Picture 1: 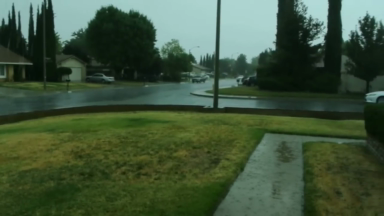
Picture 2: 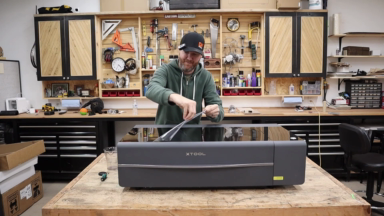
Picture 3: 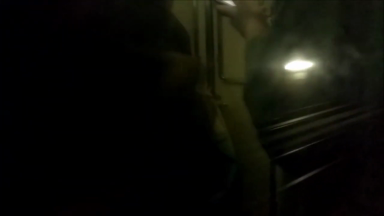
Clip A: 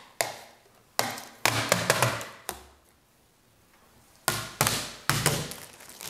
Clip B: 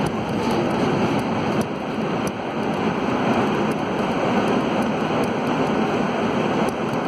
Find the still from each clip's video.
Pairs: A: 2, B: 3